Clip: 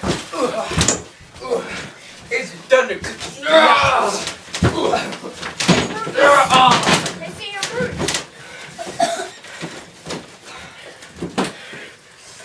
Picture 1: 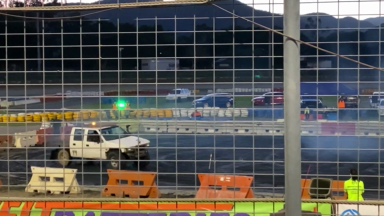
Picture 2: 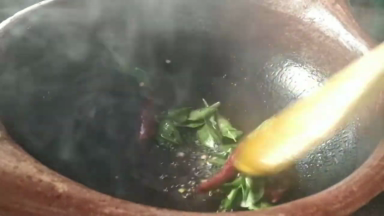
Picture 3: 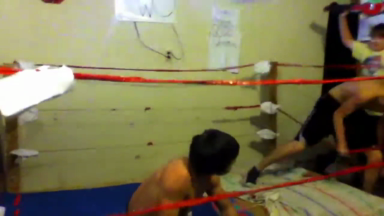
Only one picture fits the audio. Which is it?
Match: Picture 3